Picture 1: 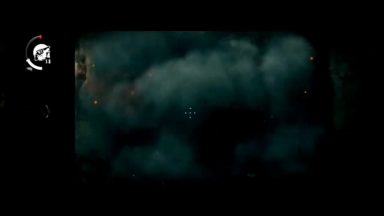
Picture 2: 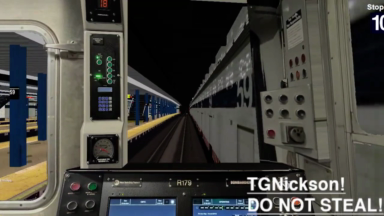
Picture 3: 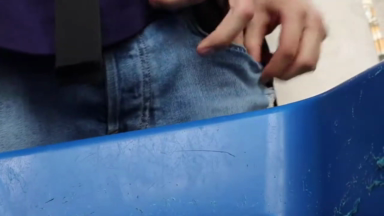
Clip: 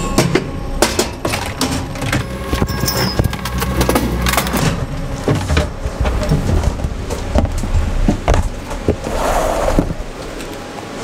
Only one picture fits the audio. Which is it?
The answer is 3